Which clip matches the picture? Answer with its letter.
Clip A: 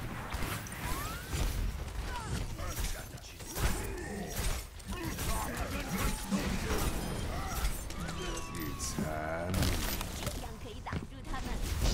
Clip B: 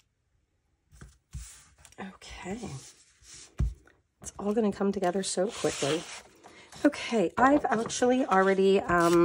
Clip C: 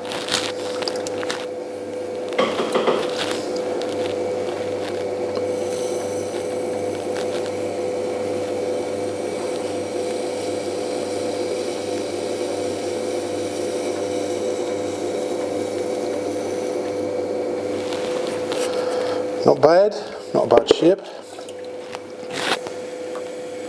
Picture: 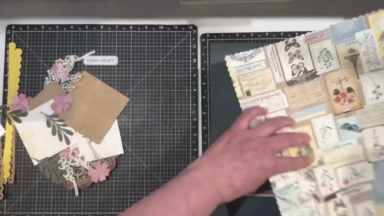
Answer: B